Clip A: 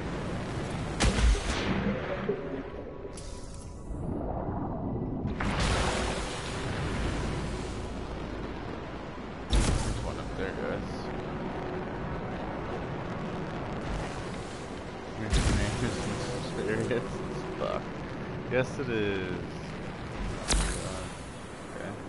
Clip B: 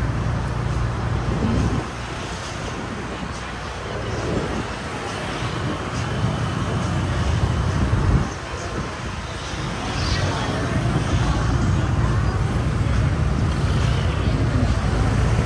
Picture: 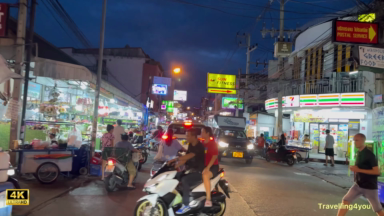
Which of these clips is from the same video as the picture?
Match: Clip B